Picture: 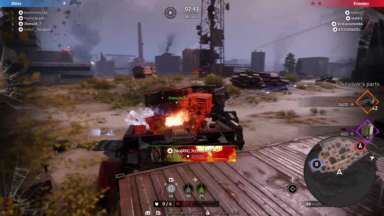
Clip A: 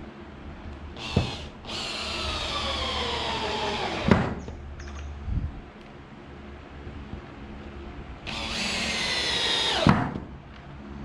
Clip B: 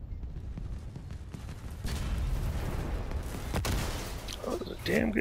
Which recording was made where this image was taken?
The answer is B